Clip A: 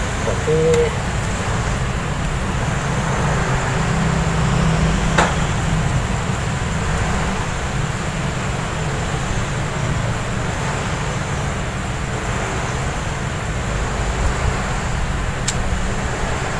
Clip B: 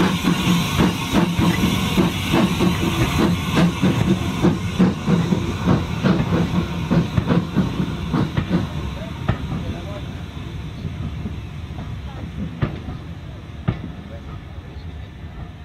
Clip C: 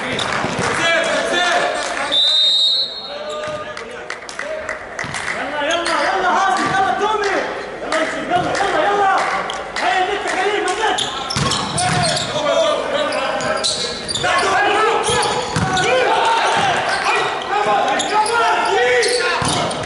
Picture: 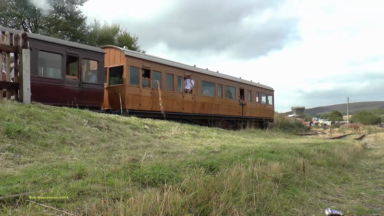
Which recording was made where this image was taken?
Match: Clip B